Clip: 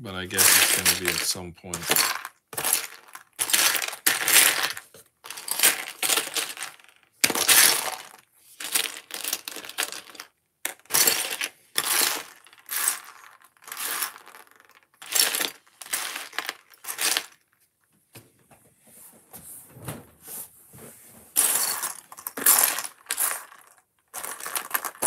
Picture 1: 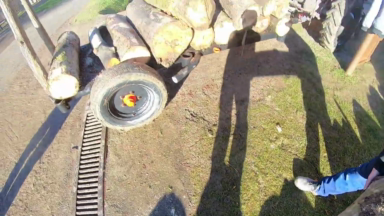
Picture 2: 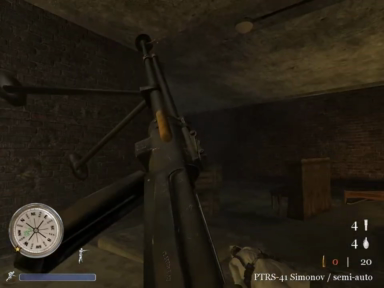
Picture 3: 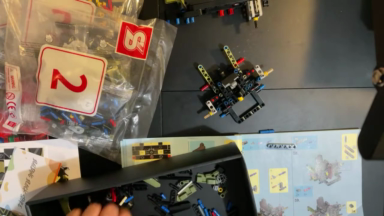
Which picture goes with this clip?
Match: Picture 3